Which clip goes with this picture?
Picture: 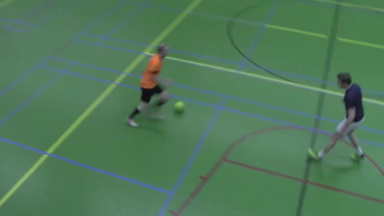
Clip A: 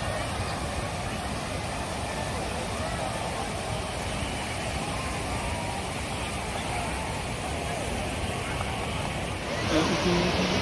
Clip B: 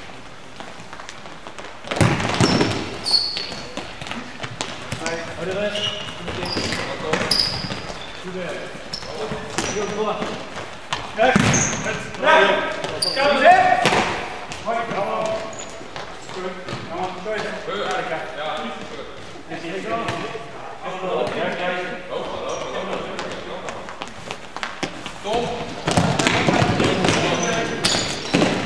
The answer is B